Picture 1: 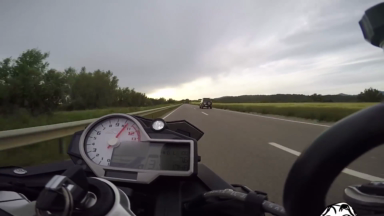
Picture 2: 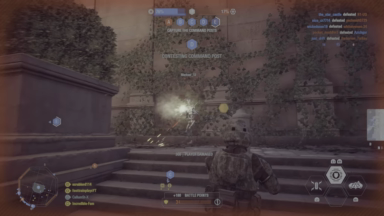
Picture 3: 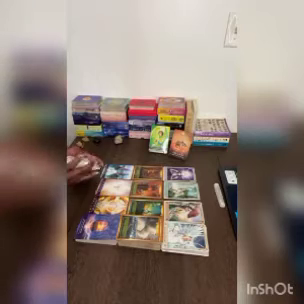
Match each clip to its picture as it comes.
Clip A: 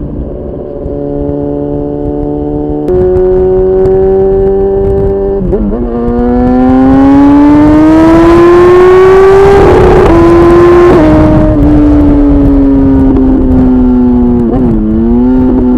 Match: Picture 1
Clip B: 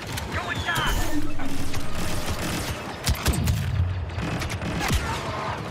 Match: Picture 2